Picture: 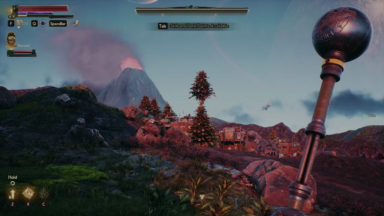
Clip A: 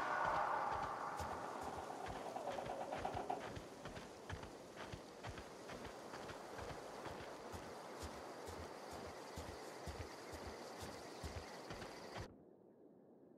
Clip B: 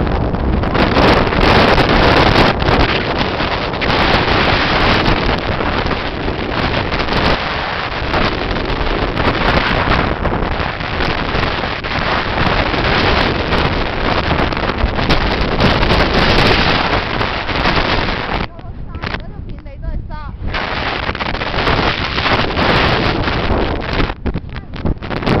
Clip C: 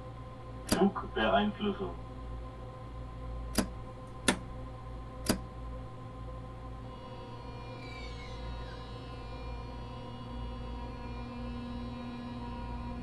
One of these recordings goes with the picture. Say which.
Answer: A